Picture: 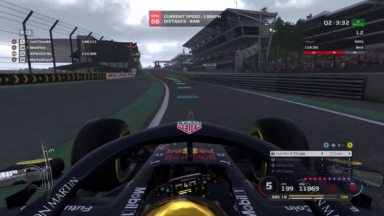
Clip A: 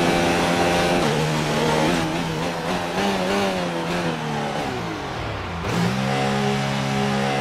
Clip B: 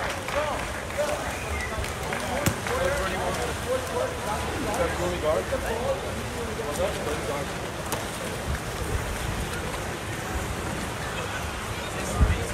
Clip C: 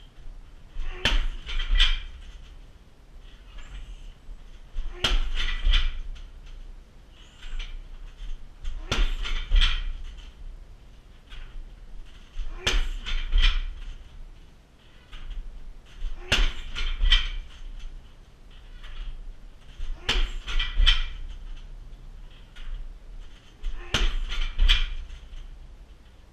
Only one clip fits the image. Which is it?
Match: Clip A